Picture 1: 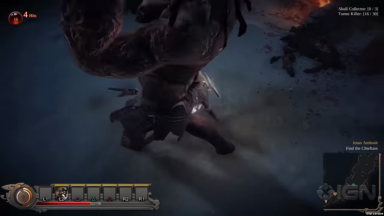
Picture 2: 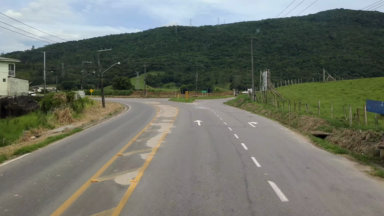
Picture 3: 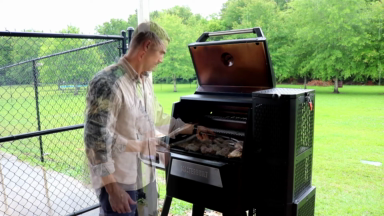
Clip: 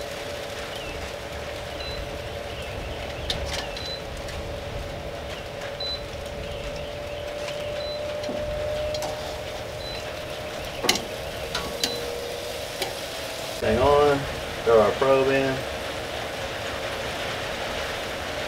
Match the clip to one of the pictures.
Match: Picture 3